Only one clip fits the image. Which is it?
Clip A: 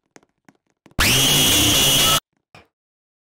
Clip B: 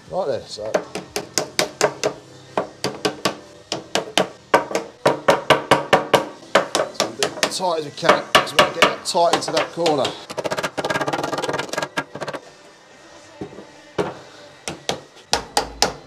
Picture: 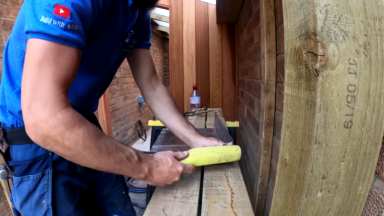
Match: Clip B